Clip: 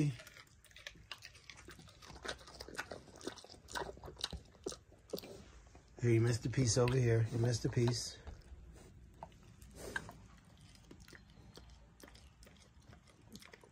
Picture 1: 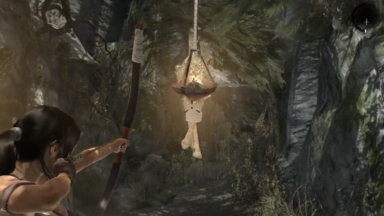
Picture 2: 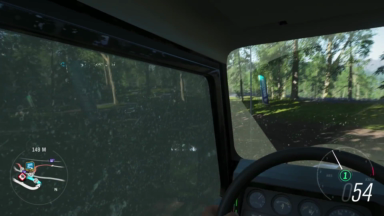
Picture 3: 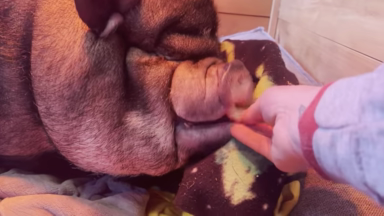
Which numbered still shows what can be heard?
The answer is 3